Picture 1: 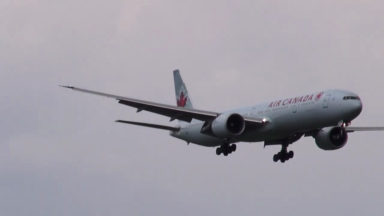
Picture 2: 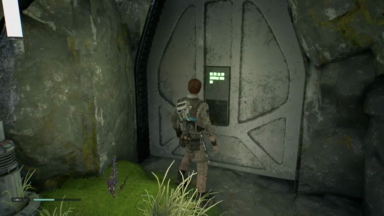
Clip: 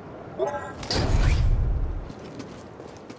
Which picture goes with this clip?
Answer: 2